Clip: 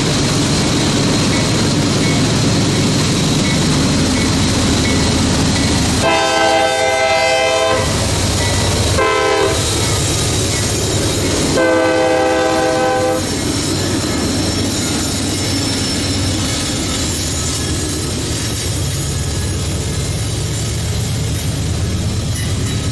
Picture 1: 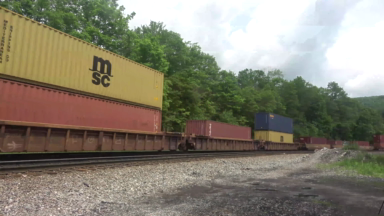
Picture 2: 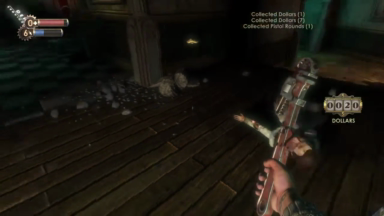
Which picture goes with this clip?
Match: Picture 1